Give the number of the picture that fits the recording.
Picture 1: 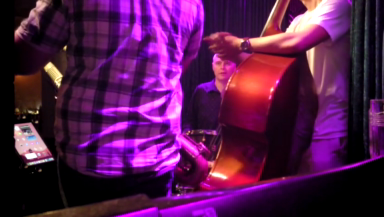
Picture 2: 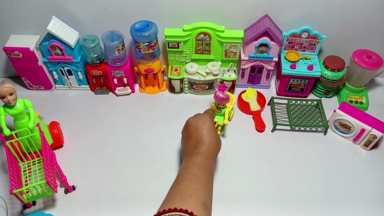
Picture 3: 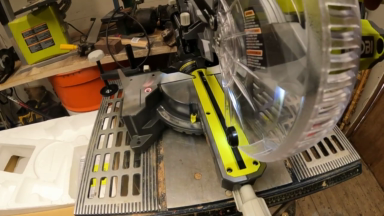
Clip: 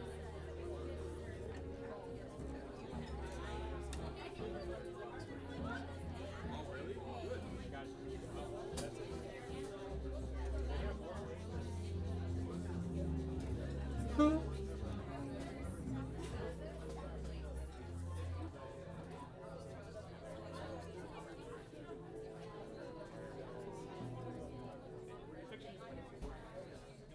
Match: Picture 1